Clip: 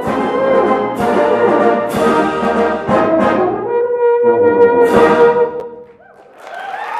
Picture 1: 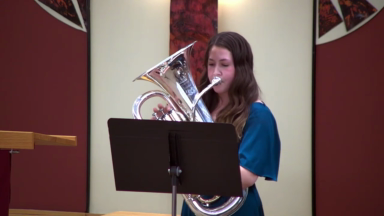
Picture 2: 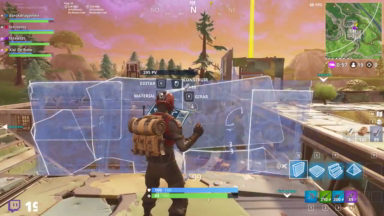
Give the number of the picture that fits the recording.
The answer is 1